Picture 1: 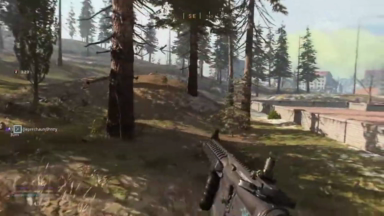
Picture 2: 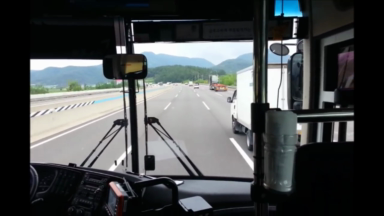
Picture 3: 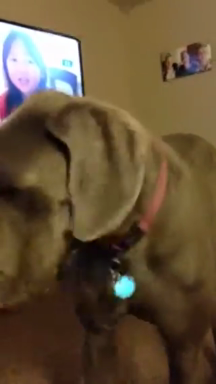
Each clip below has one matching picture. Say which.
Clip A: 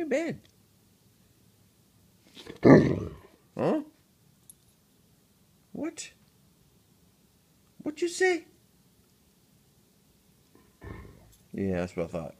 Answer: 3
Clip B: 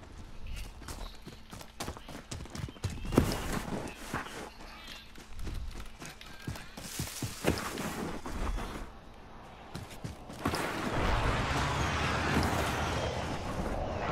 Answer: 1